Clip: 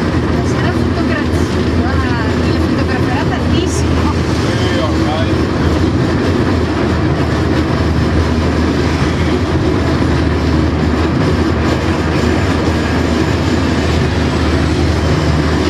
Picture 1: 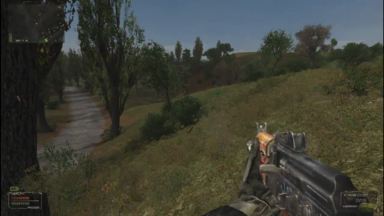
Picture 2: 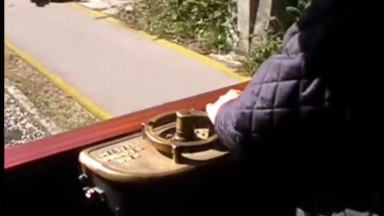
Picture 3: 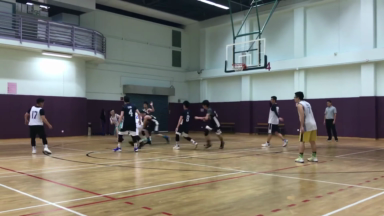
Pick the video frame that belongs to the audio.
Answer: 2